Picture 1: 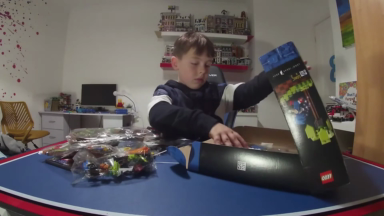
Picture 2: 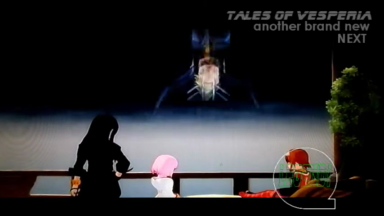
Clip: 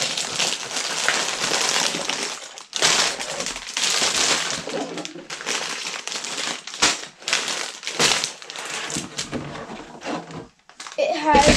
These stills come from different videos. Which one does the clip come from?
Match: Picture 1